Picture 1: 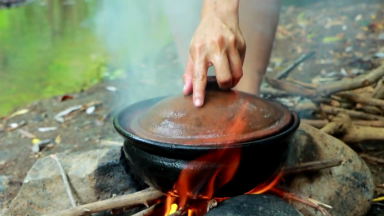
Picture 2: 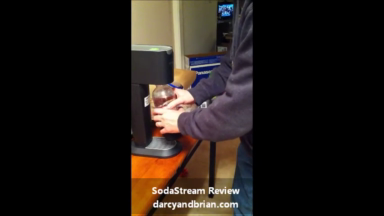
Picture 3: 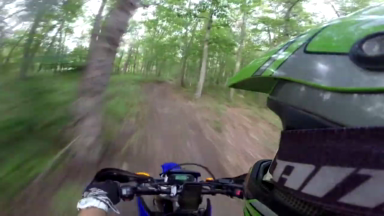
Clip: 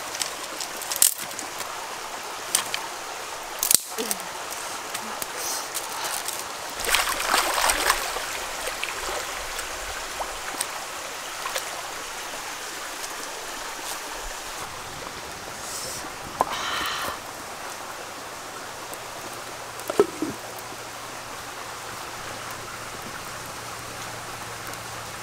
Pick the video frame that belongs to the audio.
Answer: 1